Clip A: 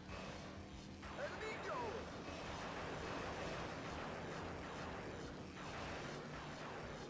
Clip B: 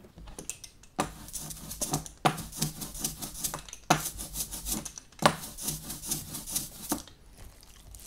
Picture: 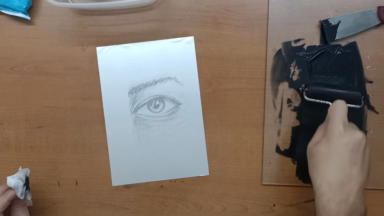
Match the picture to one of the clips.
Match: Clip B